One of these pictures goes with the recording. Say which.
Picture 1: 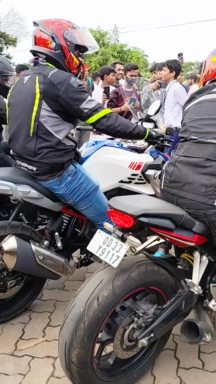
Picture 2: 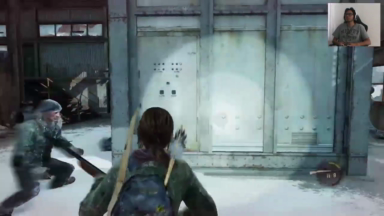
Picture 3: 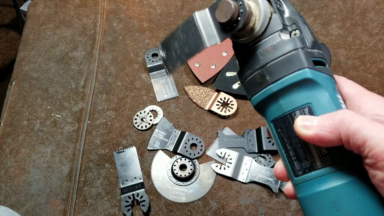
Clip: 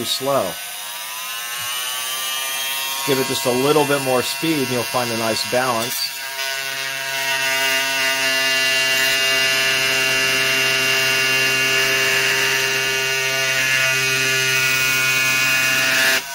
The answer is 3